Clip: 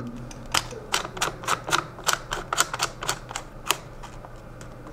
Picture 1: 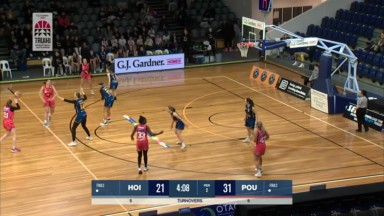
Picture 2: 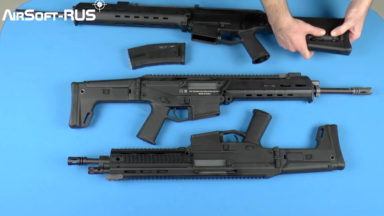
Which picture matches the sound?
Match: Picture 2